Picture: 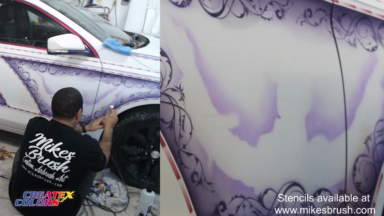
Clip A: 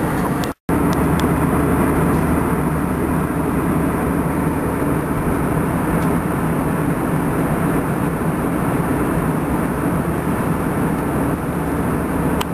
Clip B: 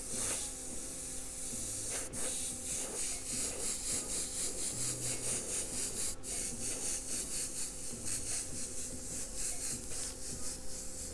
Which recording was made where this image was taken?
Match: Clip B